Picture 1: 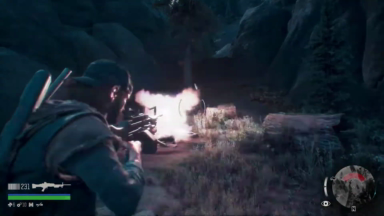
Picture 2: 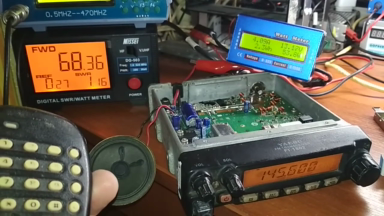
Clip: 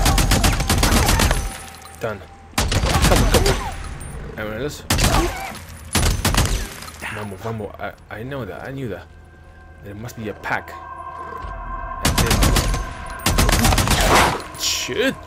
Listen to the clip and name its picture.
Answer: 1